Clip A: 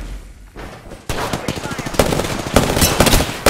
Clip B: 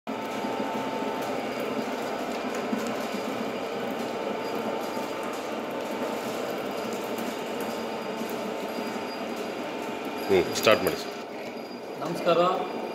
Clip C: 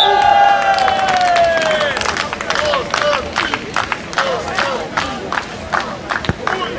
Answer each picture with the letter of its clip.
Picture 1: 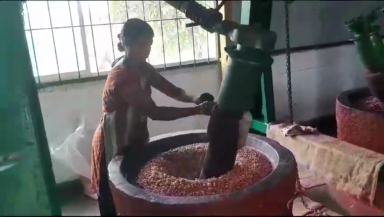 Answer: B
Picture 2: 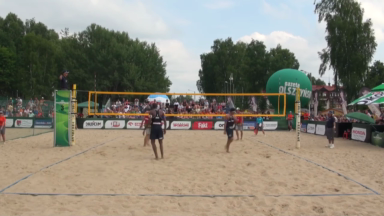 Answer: C